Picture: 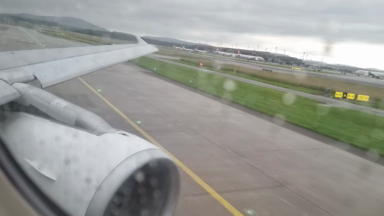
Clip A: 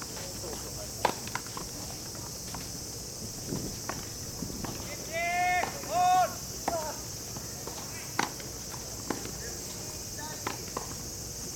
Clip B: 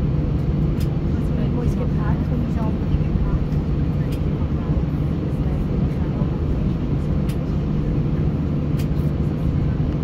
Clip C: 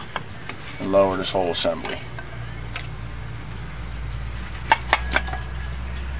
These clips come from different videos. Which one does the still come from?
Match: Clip B